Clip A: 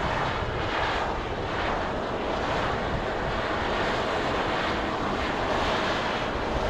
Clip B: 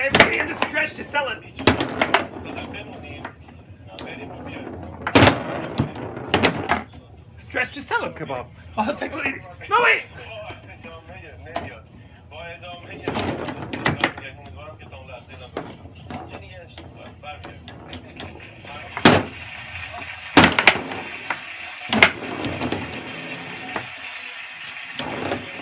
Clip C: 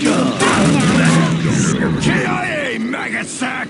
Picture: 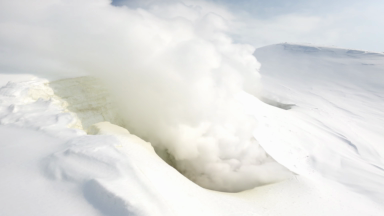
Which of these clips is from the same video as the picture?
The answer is A